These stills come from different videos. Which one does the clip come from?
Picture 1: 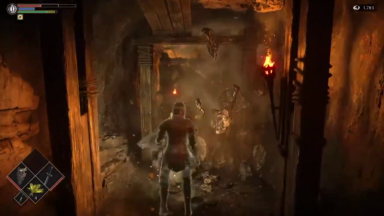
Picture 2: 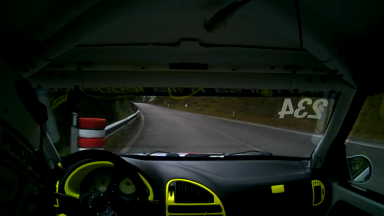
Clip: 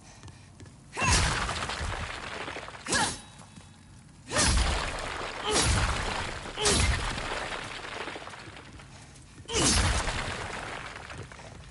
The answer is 1